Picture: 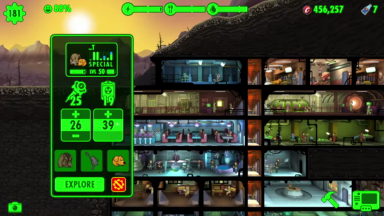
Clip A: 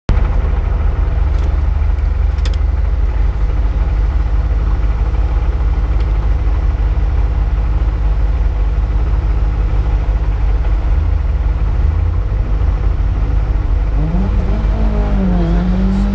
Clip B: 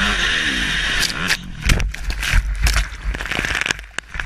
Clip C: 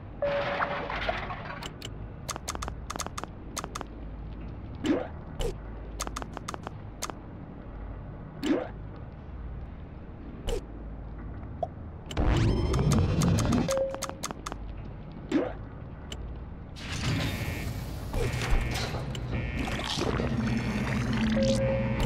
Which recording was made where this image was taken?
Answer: C